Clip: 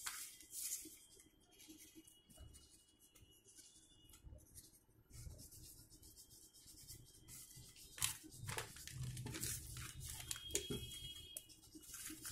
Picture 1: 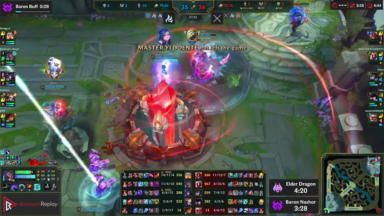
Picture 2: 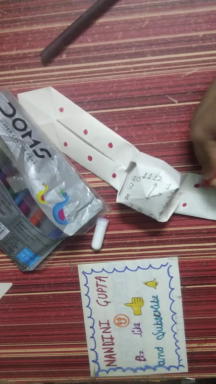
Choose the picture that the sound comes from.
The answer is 2